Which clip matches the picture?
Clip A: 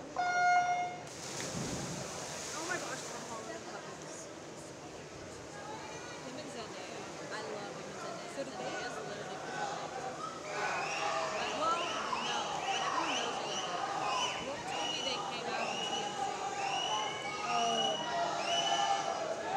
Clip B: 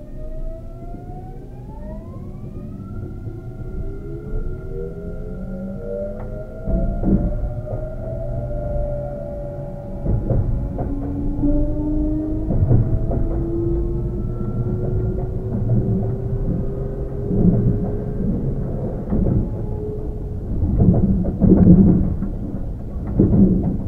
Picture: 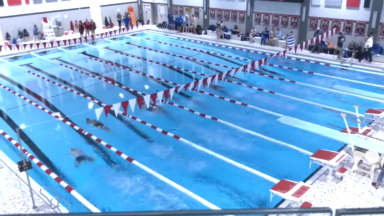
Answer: A